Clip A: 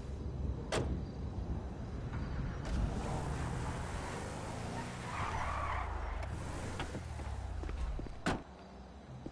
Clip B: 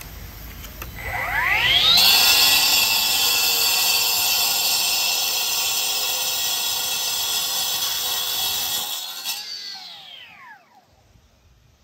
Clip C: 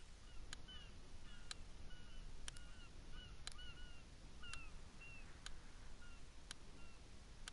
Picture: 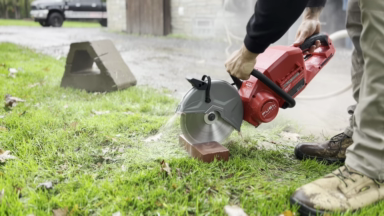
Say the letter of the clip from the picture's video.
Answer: B